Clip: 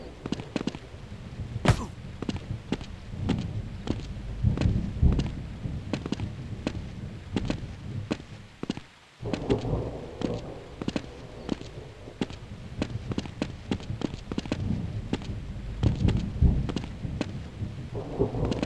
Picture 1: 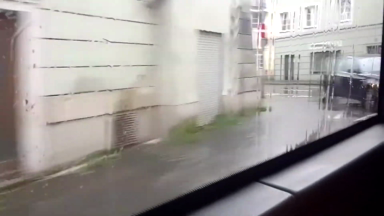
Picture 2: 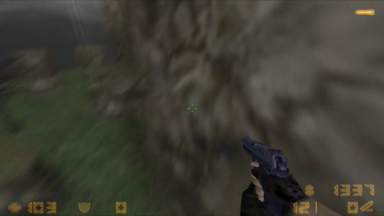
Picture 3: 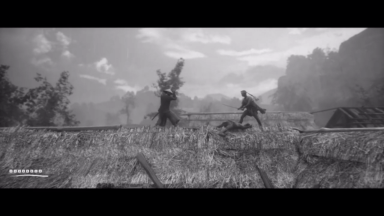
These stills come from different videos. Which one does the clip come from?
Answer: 2